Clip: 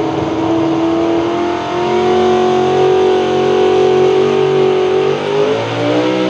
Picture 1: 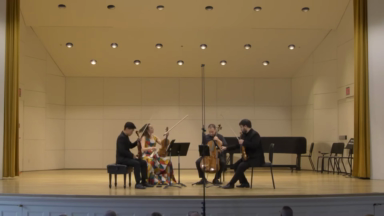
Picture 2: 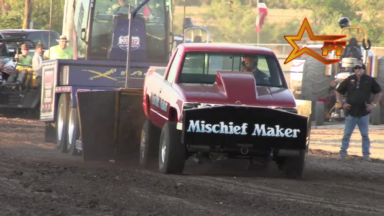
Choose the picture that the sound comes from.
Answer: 2